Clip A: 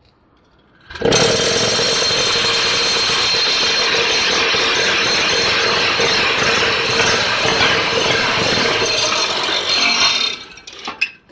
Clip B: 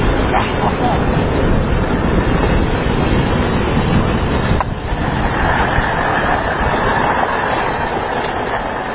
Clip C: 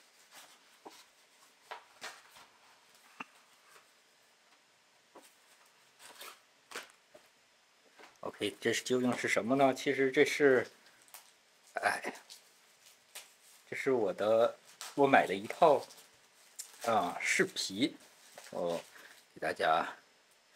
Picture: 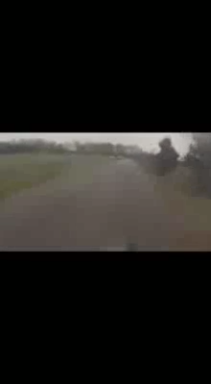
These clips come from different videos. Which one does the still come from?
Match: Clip B